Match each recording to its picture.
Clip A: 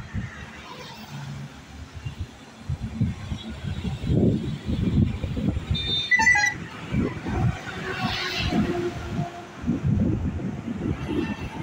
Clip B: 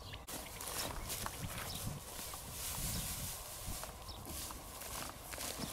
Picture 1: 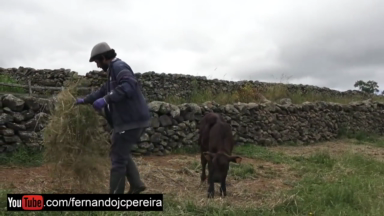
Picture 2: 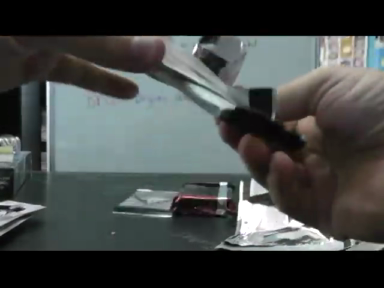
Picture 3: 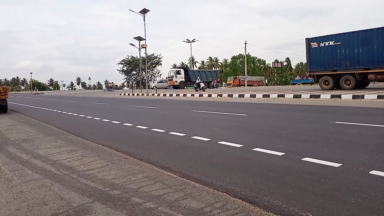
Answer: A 3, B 1